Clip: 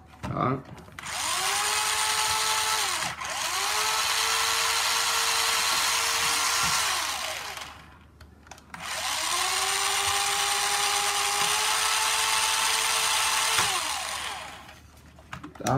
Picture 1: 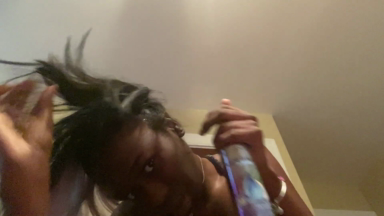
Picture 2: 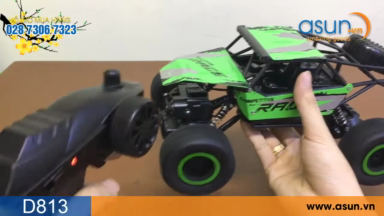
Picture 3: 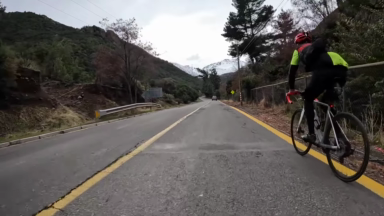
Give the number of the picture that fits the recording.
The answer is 2